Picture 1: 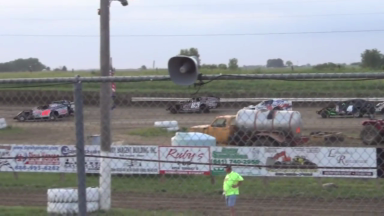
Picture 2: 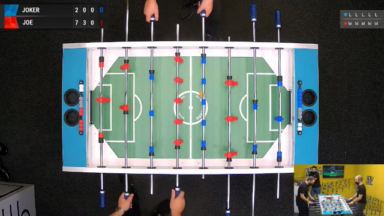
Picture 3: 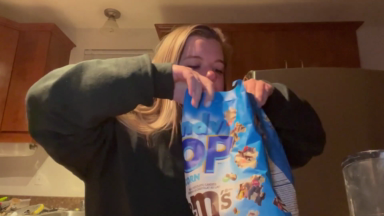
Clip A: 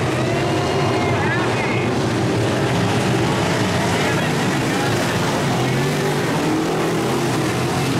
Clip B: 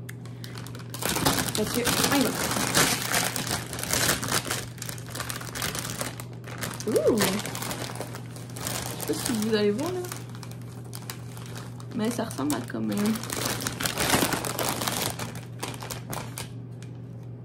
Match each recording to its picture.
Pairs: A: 1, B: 3